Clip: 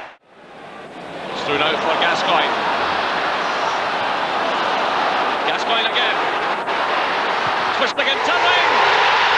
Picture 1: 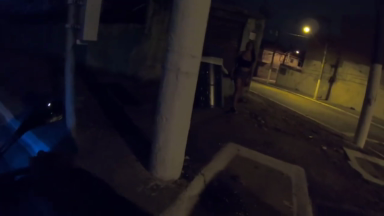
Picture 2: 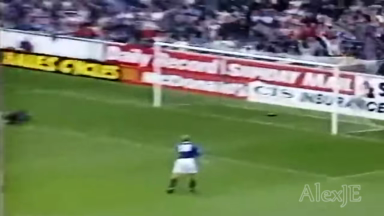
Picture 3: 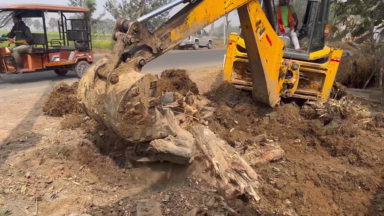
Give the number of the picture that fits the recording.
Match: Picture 2